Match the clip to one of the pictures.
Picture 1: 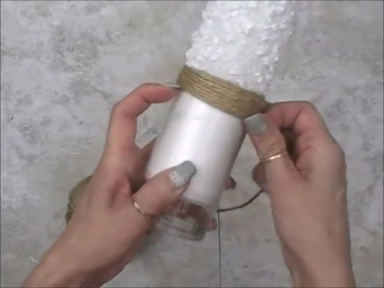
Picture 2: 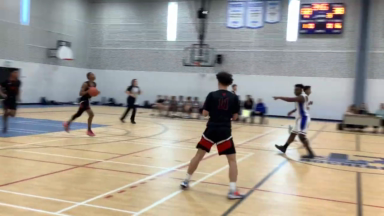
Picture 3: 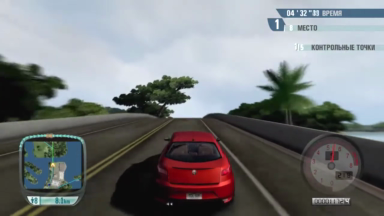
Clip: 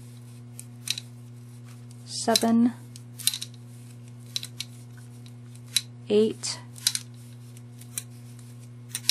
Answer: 1